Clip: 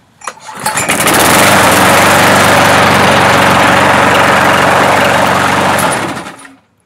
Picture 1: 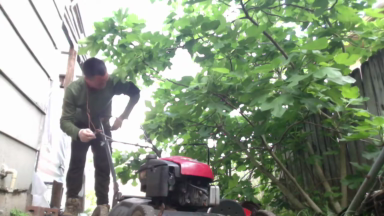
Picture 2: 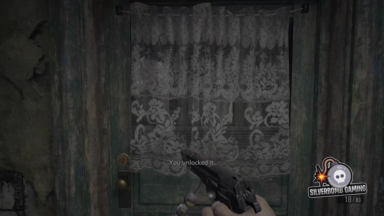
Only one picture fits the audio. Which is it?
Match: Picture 1